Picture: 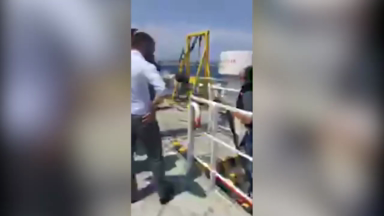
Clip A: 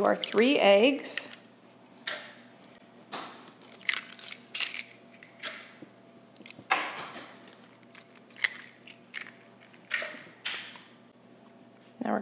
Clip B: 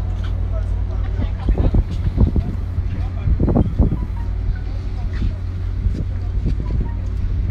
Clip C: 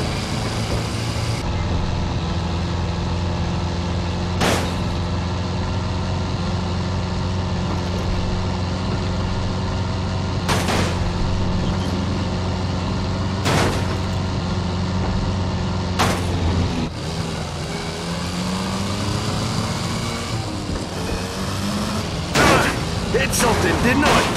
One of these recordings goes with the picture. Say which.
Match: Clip B